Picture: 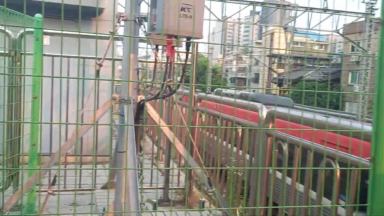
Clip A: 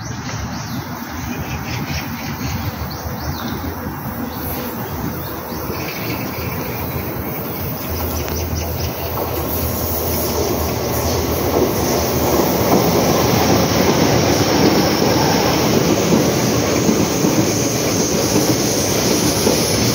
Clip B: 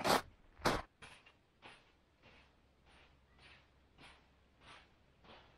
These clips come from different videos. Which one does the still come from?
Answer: A